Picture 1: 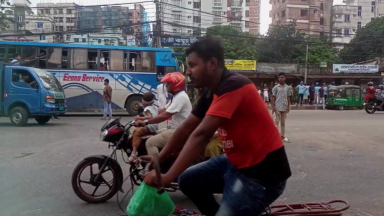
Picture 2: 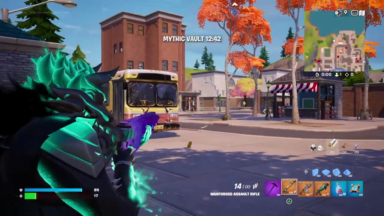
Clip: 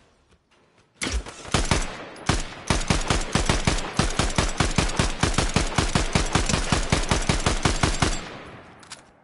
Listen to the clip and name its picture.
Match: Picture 2